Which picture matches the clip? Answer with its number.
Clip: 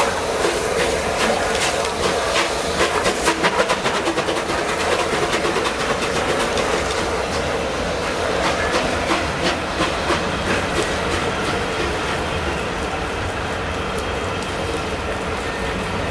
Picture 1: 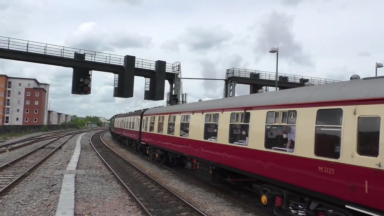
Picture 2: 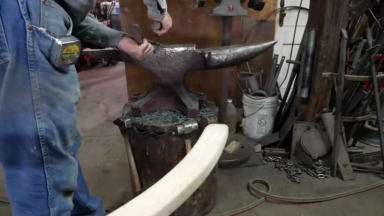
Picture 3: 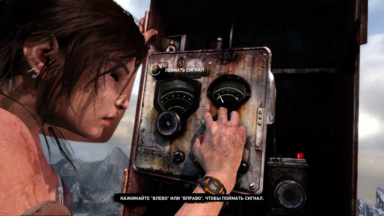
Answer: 1